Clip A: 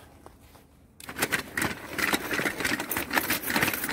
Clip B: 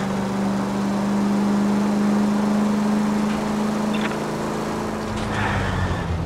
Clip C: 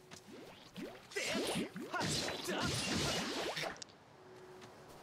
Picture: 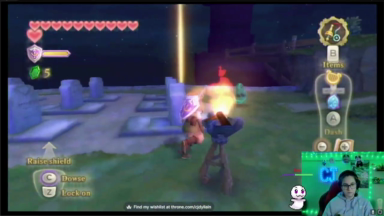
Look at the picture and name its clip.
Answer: C